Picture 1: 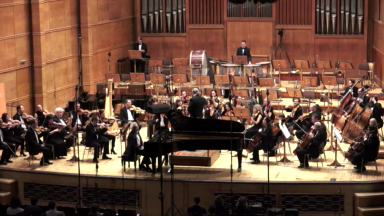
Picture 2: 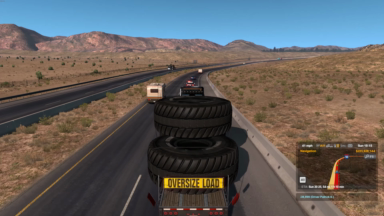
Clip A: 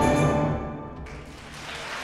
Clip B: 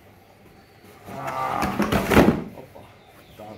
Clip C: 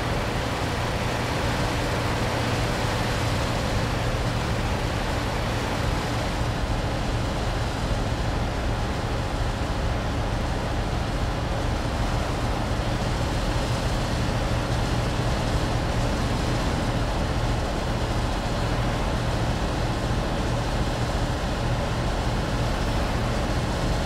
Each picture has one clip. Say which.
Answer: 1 A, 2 C